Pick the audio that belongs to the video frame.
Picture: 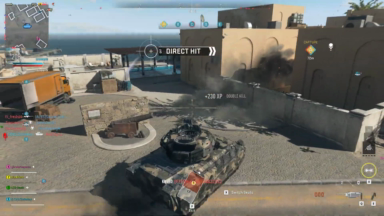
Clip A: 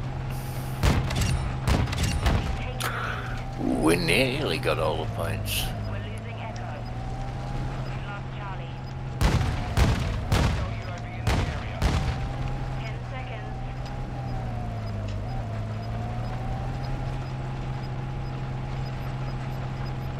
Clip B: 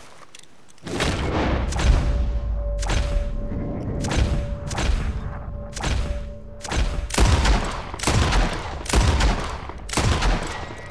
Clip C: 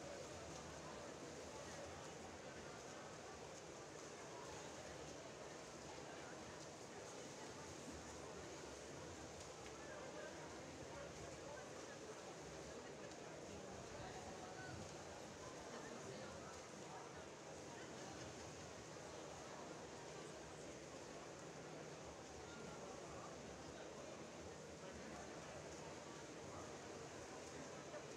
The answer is A